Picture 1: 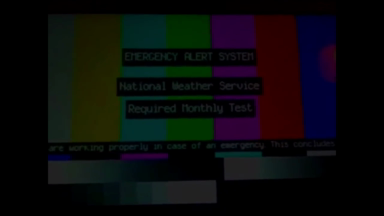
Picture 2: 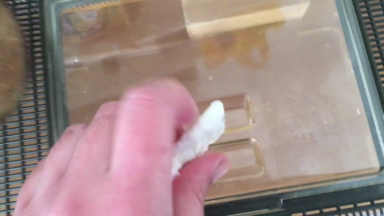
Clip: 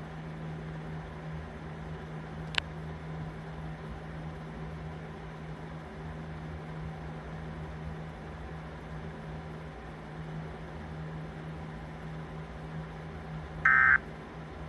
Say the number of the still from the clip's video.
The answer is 1